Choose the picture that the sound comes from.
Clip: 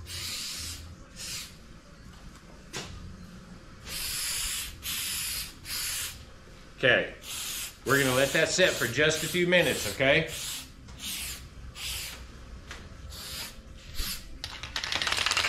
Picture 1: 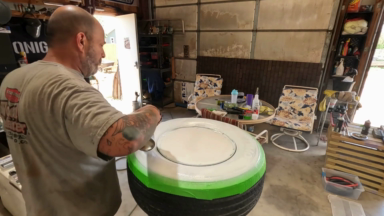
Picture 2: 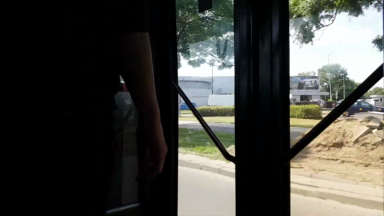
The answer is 1